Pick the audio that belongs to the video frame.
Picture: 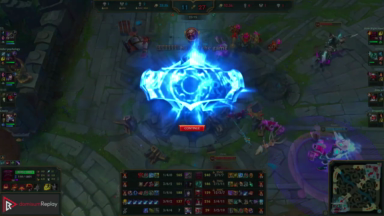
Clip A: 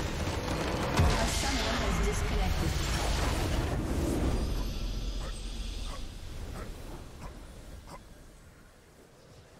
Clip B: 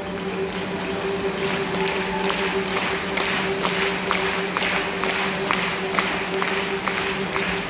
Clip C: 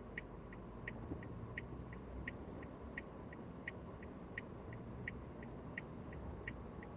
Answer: A